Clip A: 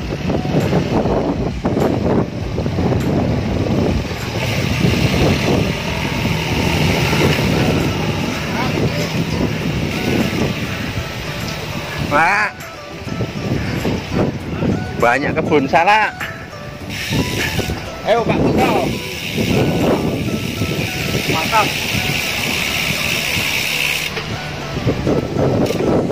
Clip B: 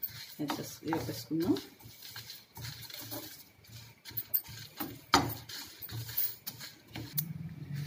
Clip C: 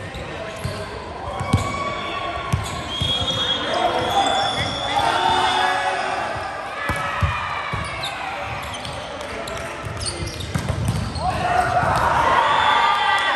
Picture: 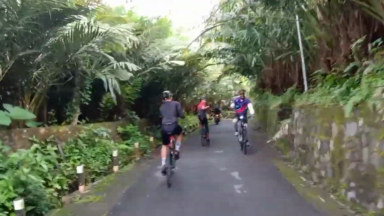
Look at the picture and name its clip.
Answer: A